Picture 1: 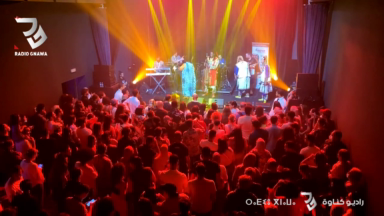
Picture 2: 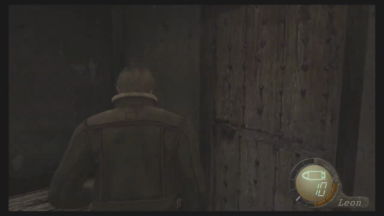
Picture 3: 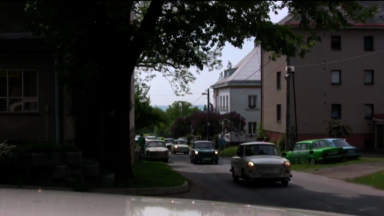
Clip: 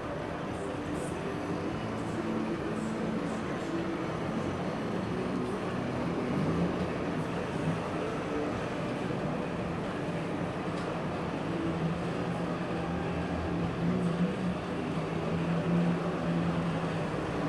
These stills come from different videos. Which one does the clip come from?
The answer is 3